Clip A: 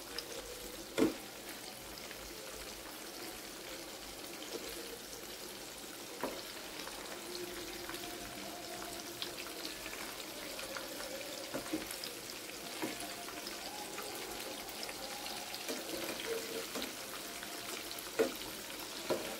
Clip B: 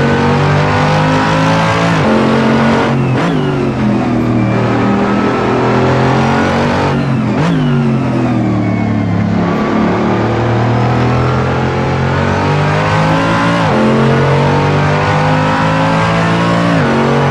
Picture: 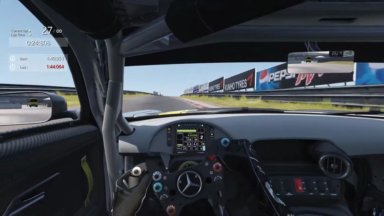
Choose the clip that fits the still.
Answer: B